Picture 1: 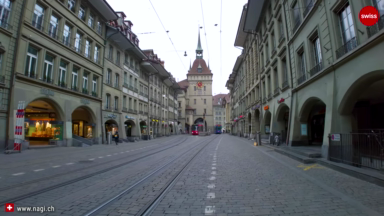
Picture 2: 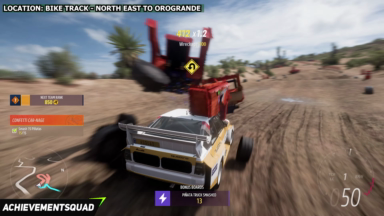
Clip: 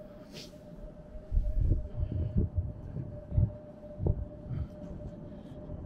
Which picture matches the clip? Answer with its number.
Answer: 1